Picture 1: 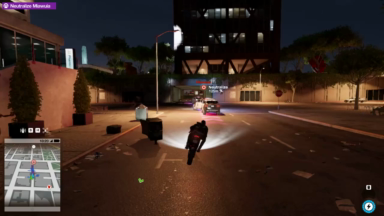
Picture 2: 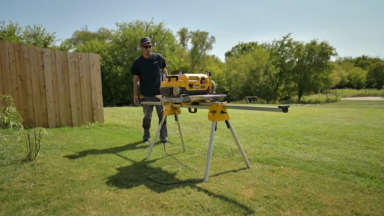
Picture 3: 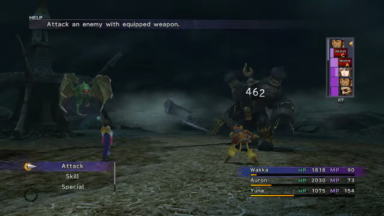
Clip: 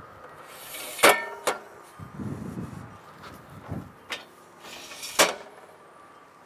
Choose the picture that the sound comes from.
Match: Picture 2